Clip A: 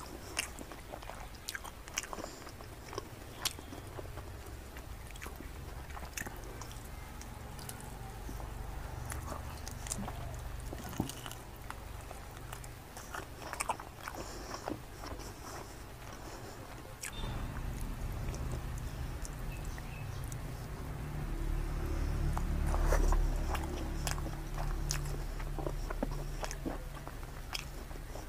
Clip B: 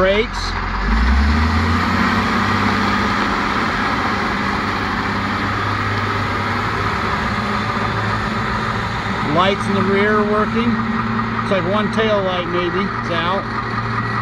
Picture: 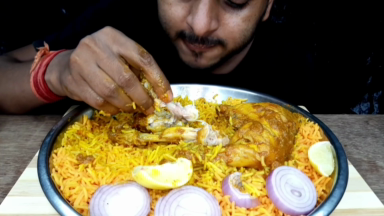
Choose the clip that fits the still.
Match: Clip A